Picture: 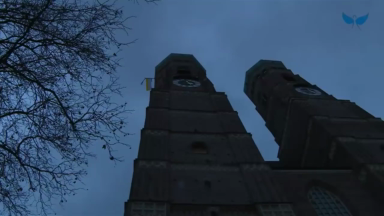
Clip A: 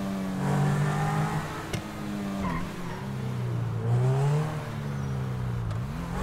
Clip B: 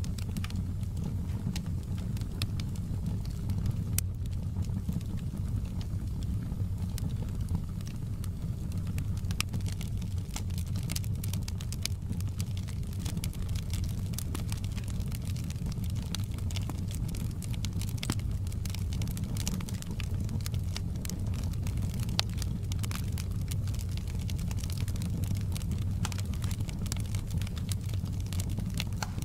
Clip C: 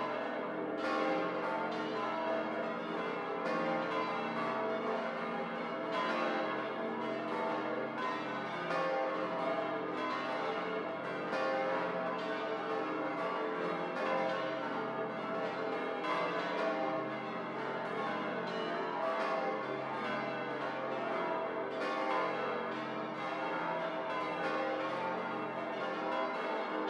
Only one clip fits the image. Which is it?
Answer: C